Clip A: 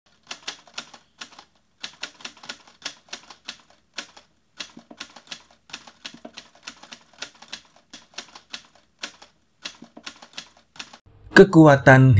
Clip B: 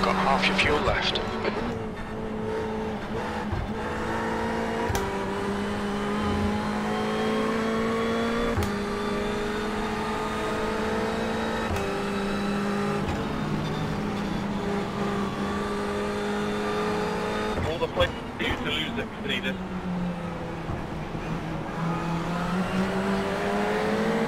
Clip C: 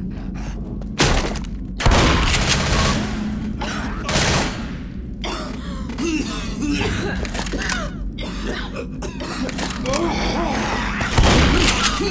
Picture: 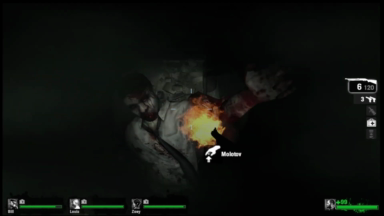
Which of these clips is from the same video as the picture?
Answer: C